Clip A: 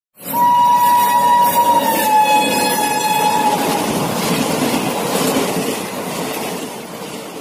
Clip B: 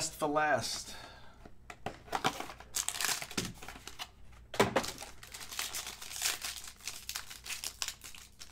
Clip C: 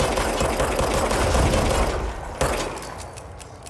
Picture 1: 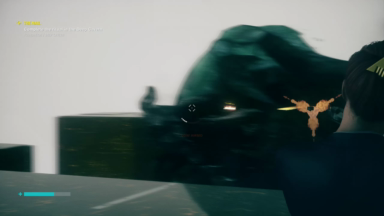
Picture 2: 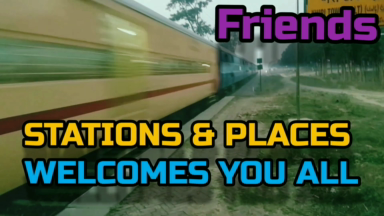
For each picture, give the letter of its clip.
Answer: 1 C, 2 A